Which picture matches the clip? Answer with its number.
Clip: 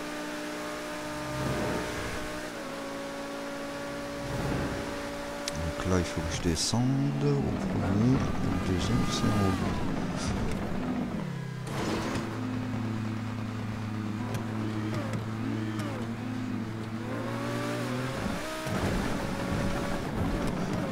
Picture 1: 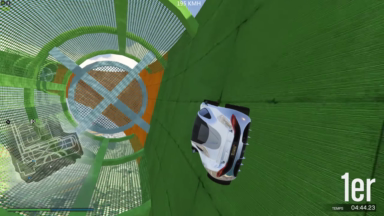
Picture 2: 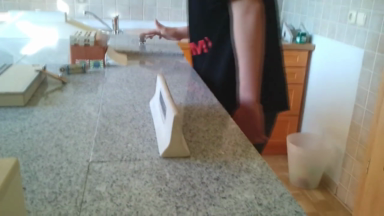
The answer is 1